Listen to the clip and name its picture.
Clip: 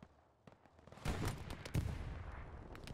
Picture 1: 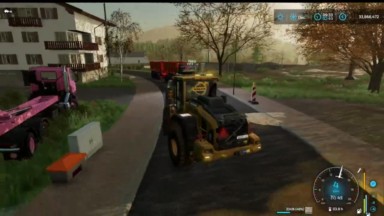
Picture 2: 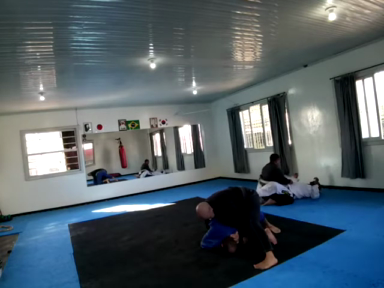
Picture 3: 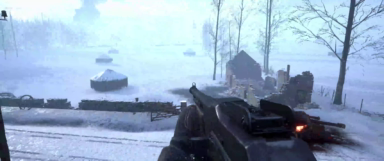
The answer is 3